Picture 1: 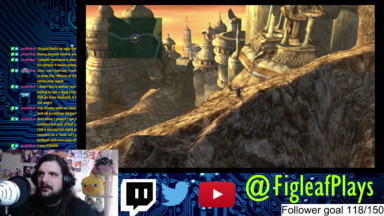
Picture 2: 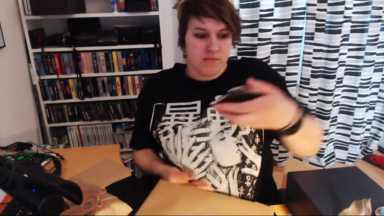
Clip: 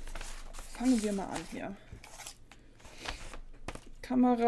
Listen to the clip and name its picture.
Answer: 2